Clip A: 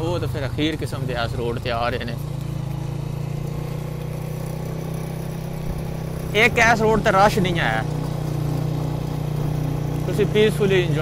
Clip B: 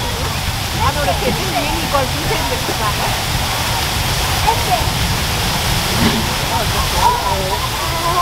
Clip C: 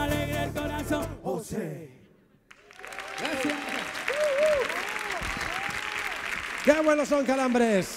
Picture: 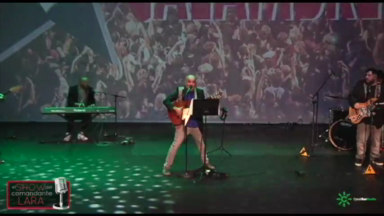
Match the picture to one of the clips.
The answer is C